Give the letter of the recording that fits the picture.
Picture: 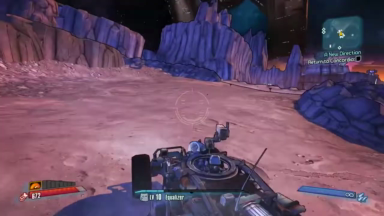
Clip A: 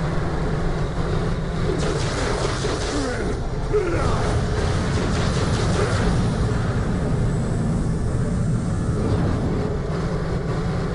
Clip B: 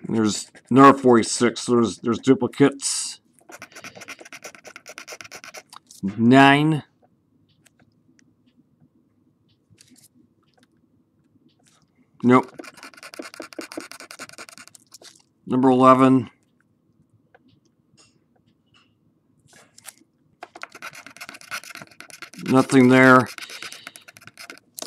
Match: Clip A